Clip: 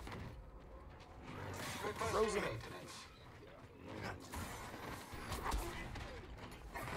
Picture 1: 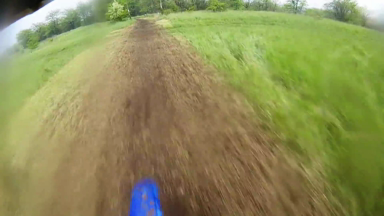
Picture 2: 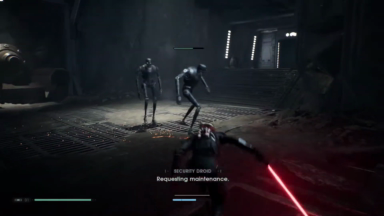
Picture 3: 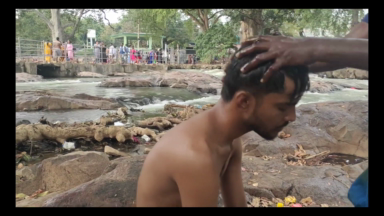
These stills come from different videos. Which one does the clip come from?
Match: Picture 2